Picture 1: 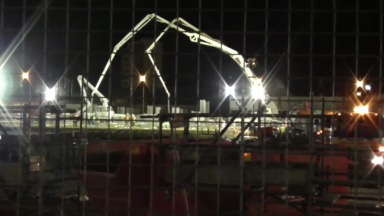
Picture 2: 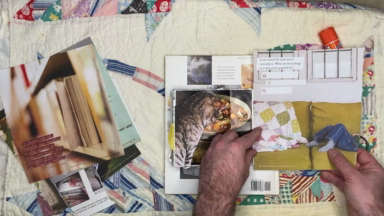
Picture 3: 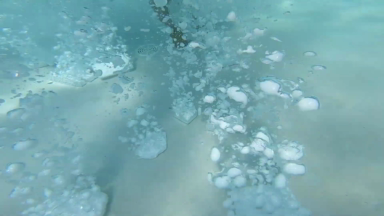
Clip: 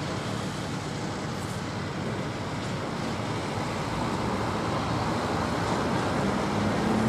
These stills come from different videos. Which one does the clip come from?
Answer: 1